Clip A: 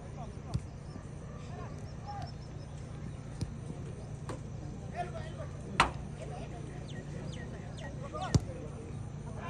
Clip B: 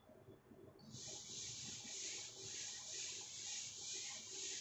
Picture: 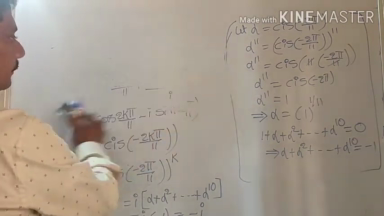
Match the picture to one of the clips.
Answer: B